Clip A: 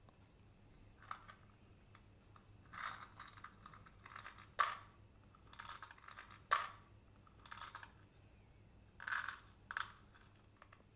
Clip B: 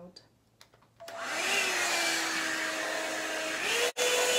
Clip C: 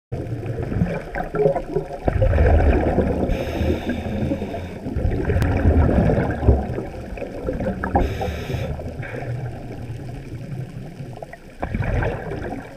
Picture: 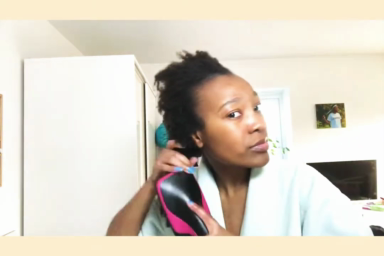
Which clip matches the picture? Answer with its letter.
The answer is B